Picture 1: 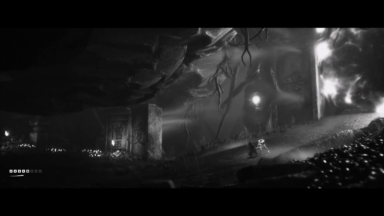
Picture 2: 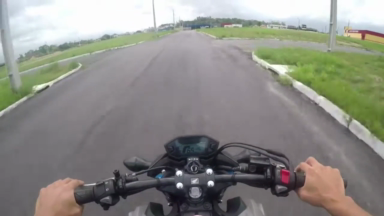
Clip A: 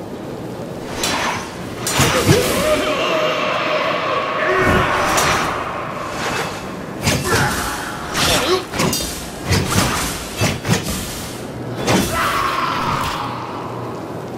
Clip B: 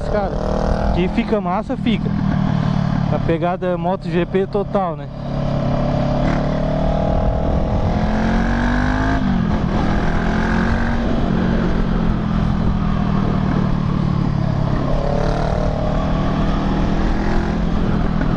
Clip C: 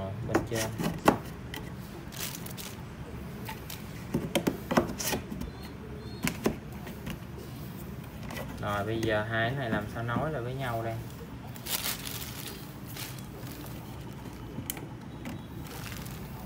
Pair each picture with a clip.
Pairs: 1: A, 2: B